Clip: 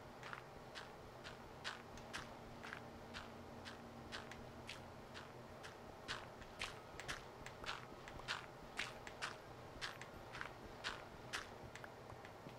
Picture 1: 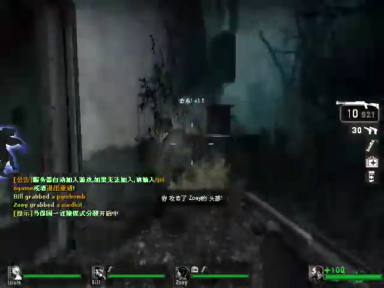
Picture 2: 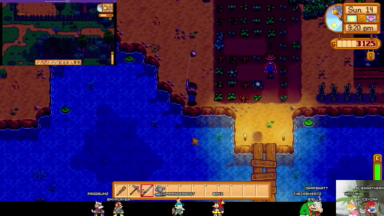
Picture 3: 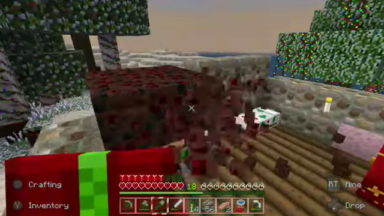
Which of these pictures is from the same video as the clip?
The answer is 3